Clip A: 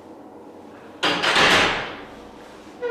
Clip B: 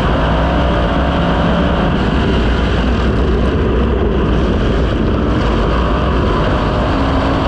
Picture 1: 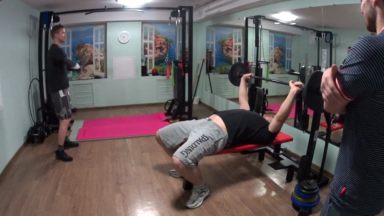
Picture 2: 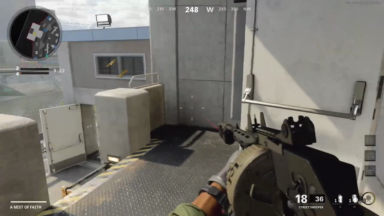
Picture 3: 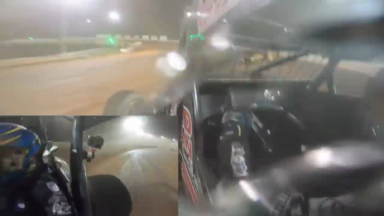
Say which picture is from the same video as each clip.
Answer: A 1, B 3